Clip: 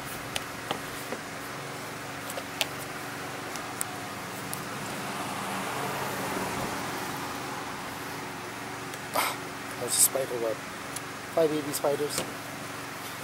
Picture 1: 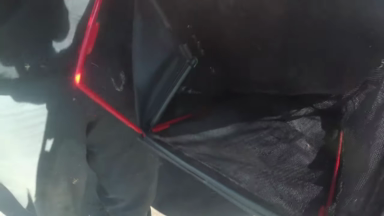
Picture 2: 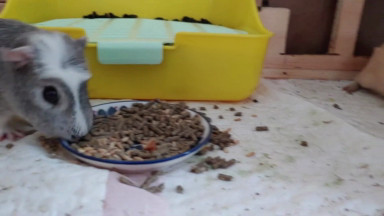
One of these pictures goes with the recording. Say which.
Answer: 1